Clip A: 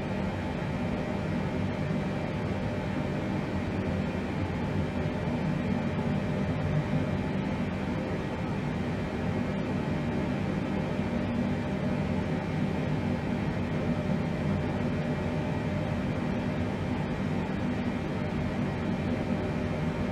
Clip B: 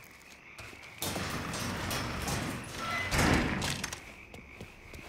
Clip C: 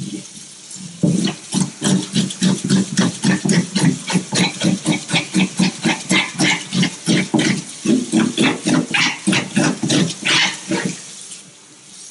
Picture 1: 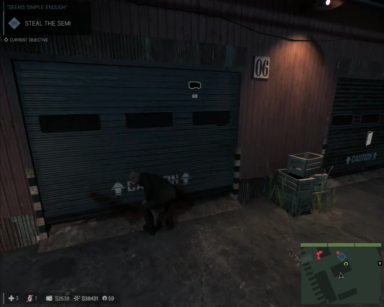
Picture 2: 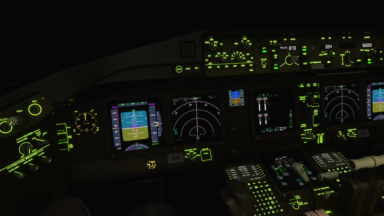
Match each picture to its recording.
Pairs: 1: B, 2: A